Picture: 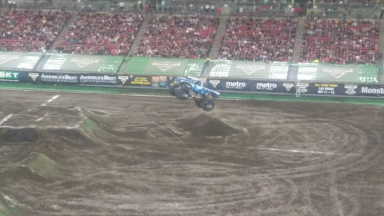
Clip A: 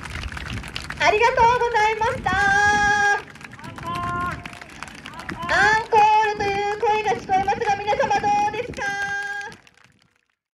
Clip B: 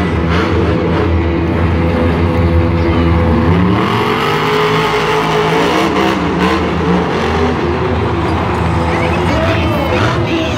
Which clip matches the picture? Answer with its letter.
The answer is B